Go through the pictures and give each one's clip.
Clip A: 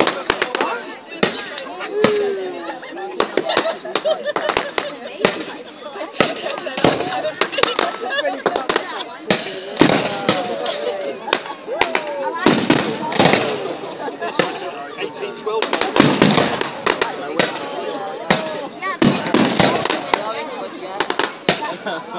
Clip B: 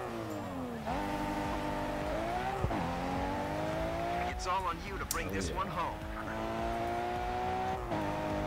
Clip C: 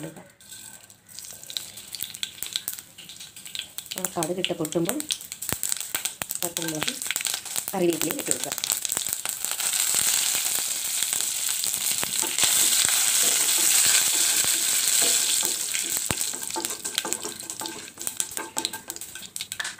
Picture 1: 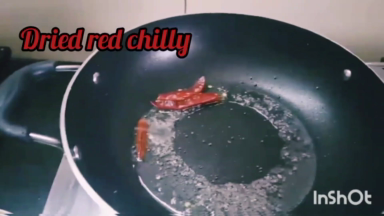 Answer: C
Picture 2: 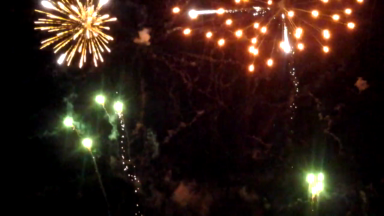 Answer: A